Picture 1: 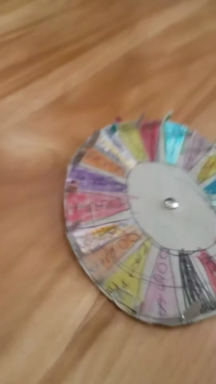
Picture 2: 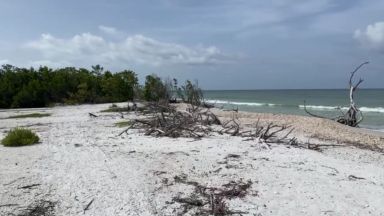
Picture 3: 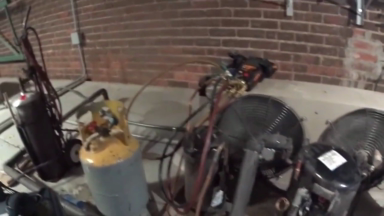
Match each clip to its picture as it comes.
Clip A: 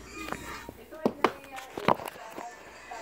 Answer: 1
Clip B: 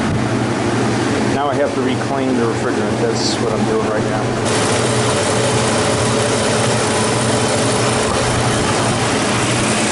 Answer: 3